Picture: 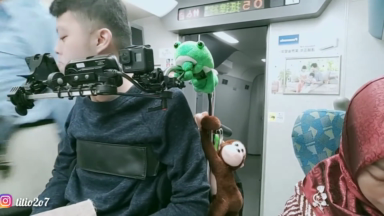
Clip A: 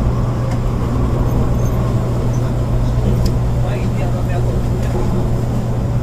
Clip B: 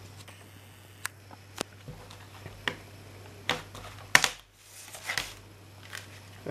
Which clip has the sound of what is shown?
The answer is A